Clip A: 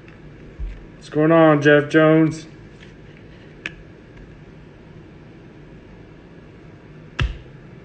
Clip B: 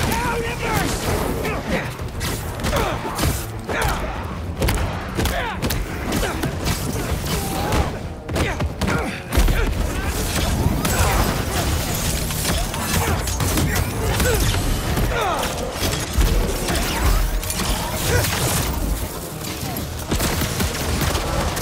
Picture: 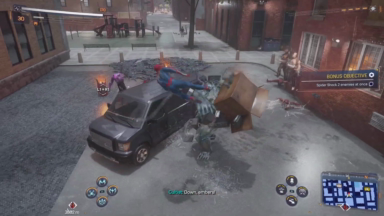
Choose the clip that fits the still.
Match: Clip B